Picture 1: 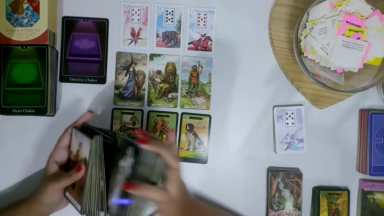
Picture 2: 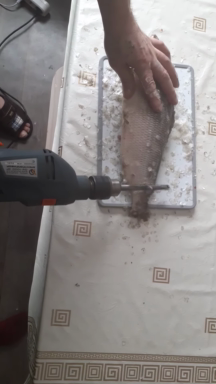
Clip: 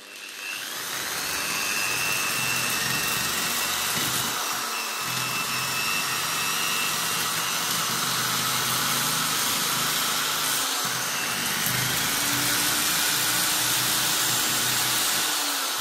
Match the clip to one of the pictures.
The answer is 2